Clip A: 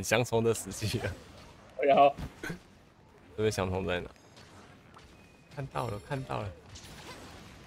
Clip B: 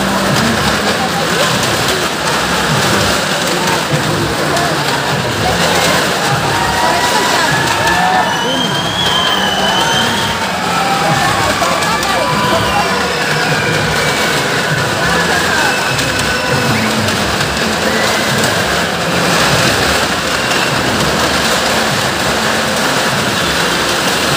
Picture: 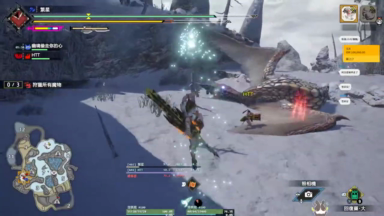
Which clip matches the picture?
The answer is A